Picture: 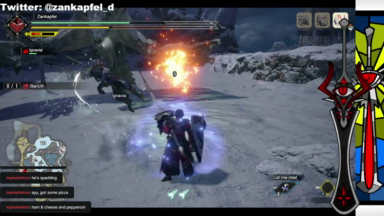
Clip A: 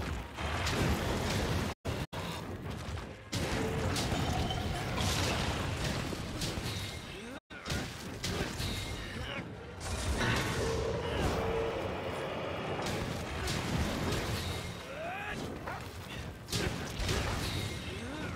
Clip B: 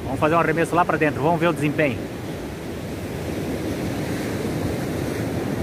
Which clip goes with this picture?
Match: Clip A